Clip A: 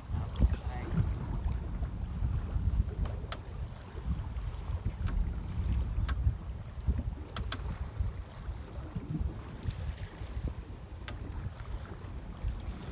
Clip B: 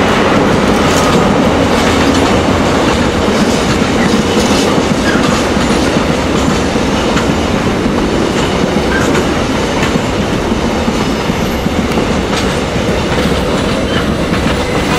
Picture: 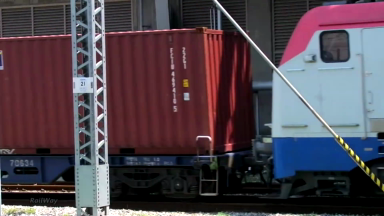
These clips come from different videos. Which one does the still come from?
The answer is B